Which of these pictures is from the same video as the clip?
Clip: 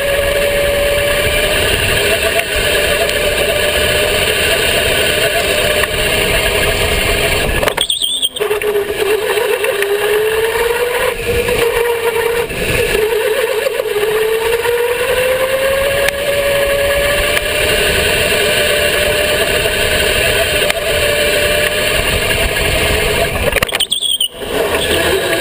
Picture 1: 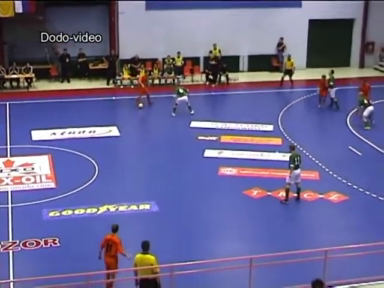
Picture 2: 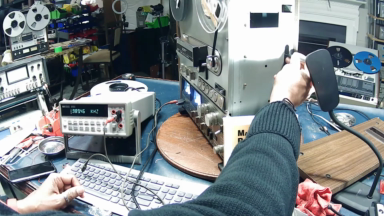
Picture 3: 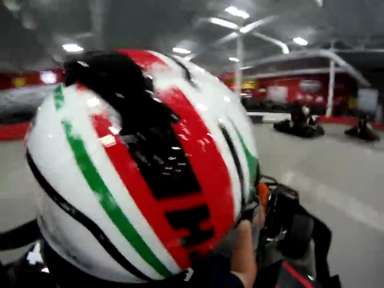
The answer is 3